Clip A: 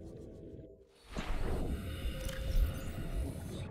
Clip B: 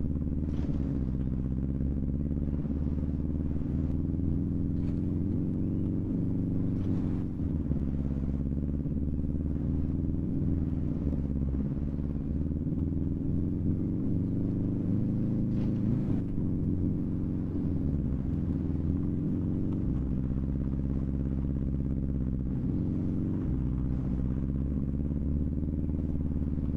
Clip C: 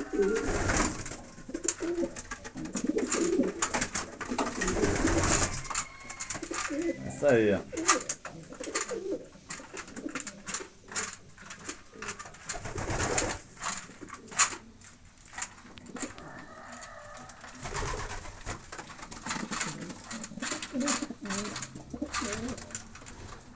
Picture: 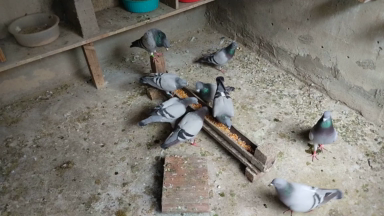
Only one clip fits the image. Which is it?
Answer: C